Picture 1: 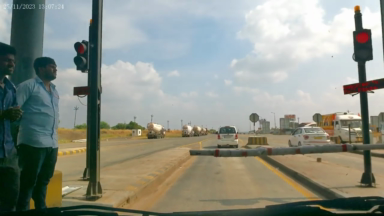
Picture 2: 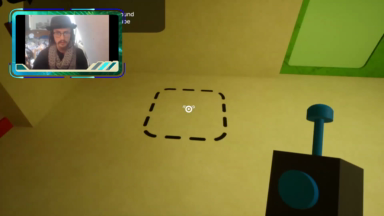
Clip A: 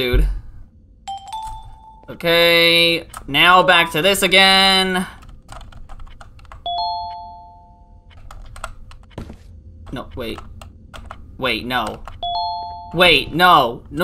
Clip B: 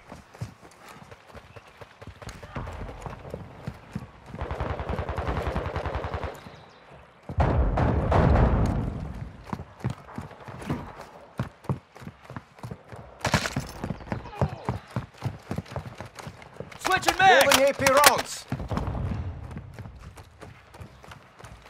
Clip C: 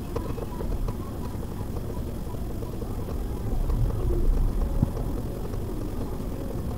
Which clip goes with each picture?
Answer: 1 C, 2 A